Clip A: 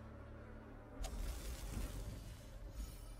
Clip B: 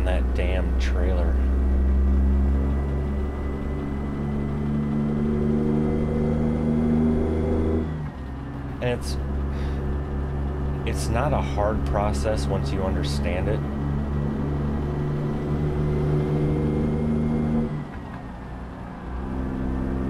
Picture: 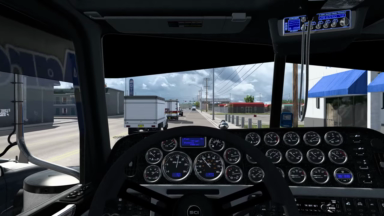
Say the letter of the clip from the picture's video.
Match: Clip B